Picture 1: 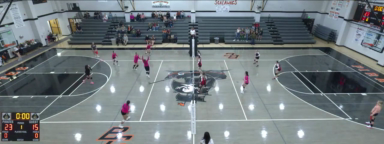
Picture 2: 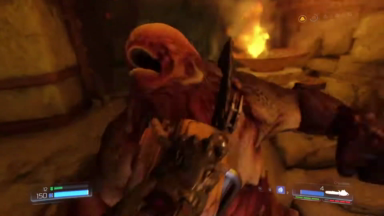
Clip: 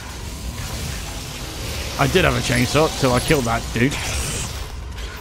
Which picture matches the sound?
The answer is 2